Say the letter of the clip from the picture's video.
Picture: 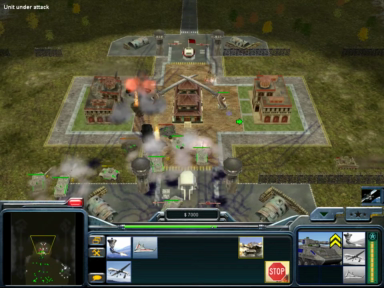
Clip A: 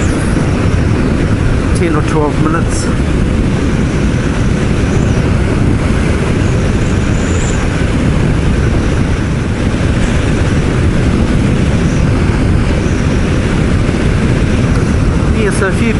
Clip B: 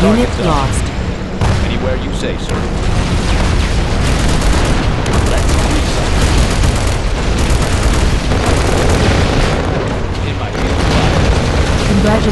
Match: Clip B